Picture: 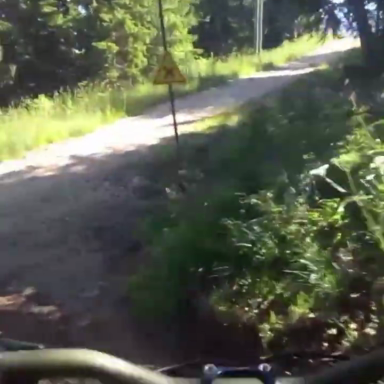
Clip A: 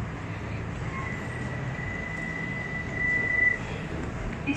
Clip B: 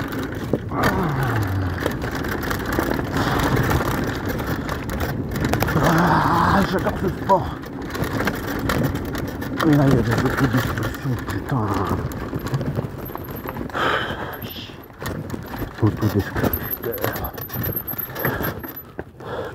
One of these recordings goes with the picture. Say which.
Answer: B